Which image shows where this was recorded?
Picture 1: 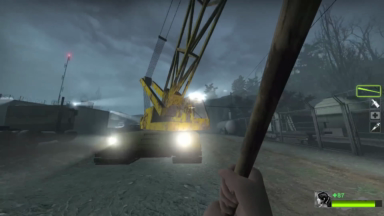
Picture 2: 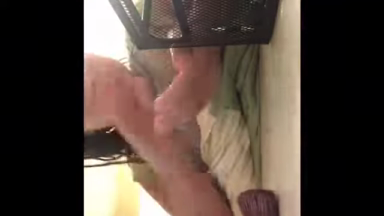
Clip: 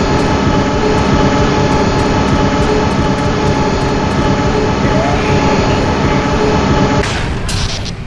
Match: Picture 1